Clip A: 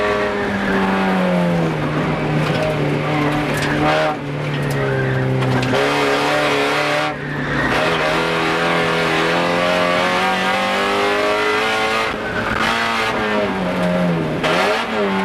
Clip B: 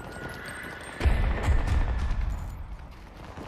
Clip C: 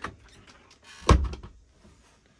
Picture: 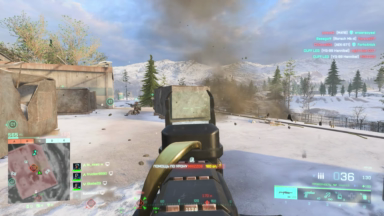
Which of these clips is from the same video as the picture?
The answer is B